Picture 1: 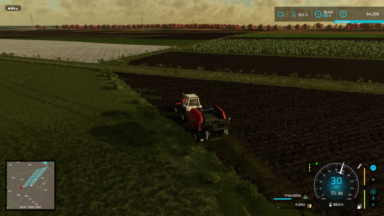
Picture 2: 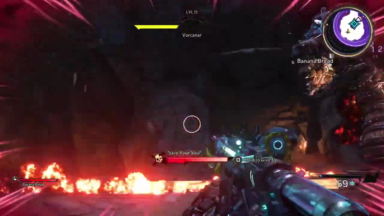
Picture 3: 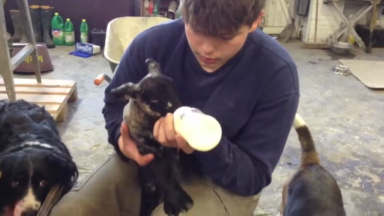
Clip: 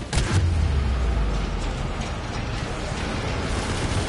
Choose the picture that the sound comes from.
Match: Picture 2